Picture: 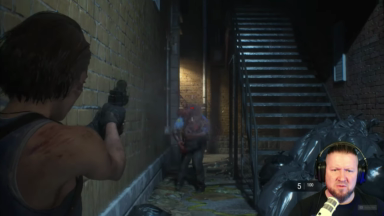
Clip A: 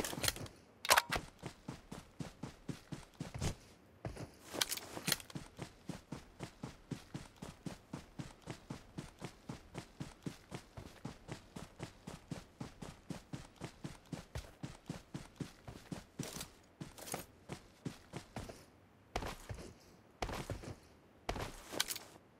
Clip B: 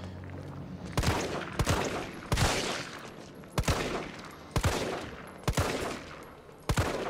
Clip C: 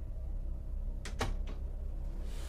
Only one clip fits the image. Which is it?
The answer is B